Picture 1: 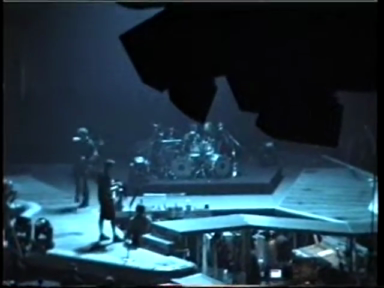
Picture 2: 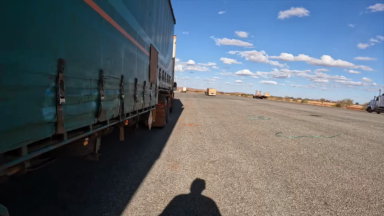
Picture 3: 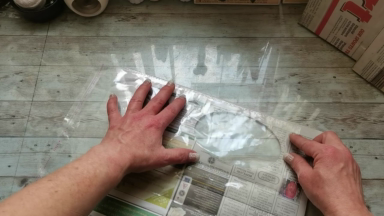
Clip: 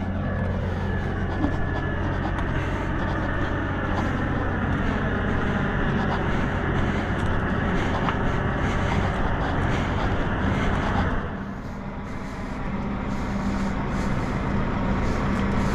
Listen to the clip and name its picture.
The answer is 2